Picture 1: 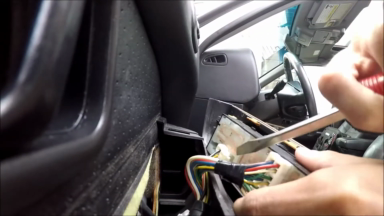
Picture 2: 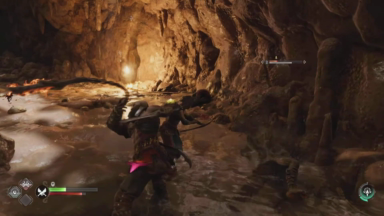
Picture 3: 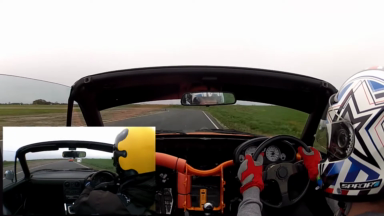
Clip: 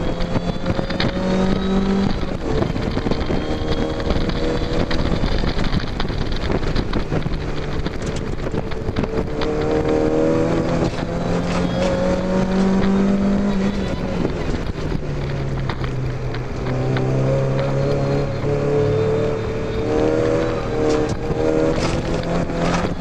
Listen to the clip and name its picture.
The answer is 3